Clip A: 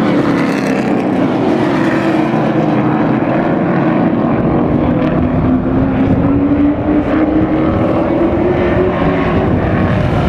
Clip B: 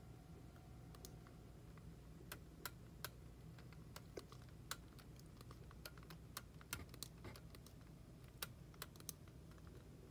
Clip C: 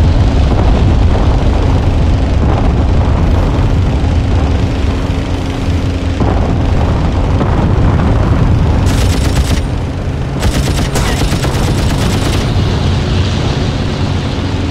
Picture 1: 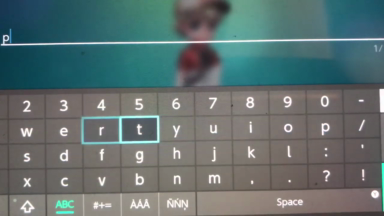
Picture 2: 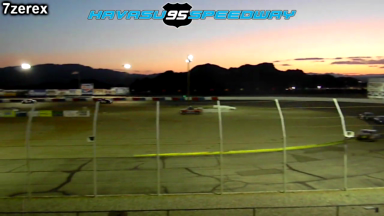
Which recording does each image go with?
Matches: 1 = B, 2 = A